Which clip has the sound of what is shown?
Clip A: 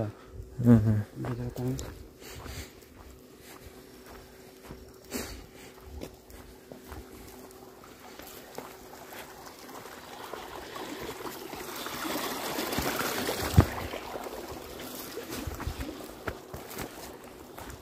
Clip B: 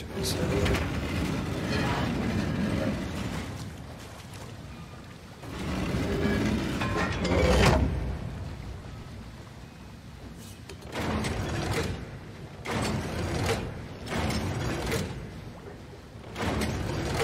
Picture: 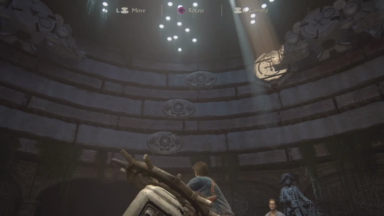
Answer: B